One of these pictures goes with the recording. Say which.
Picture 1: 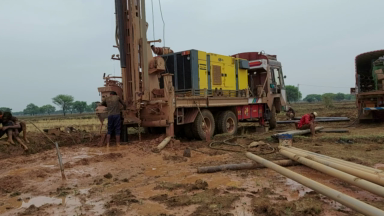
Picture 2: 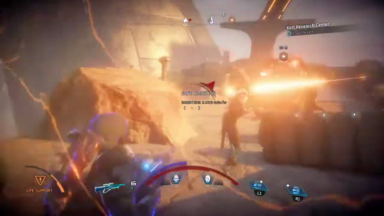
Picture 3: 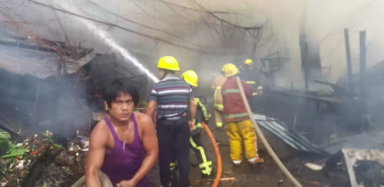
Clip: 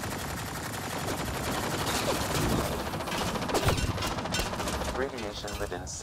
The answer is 2